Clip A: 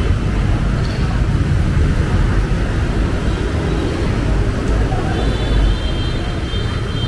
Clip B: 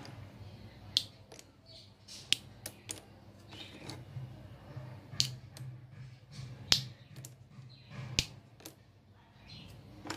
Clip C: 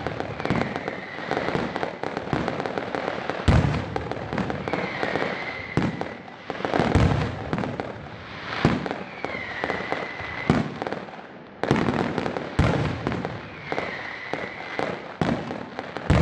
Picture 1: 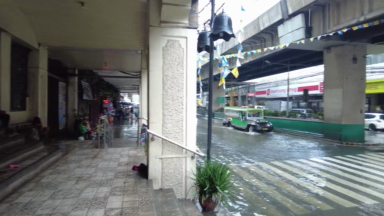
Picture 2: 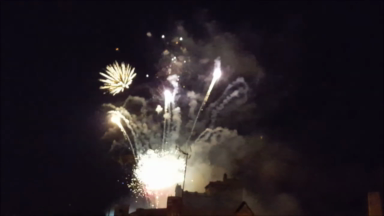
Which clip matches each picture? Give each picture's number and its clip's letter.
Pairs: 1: A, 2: C